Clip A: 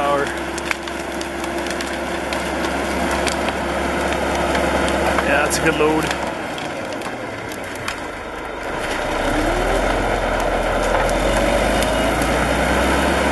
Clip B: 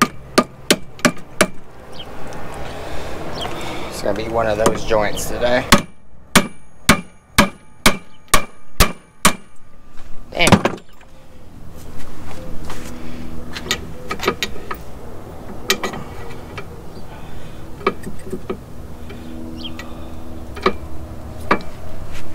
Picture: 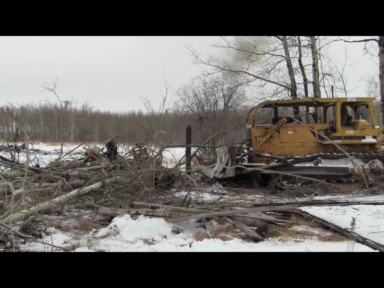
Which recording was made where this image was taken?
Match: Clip A